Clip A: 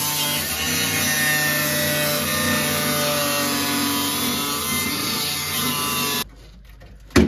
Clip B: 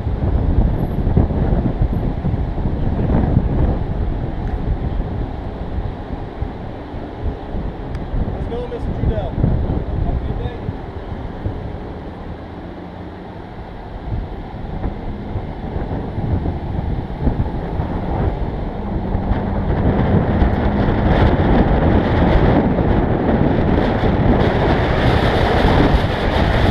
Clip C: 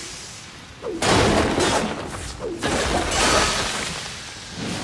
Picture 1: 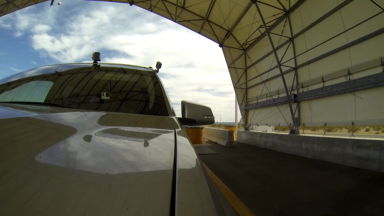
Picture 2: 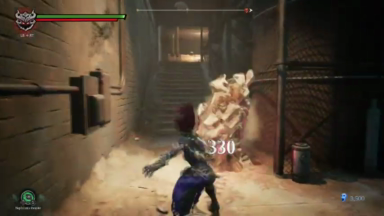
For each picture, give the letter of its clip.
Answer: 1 B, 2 C